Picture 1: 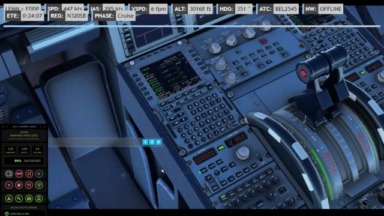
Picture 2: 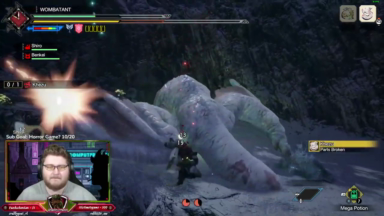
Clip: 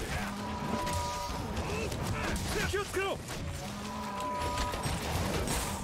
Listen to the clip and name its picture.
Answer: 2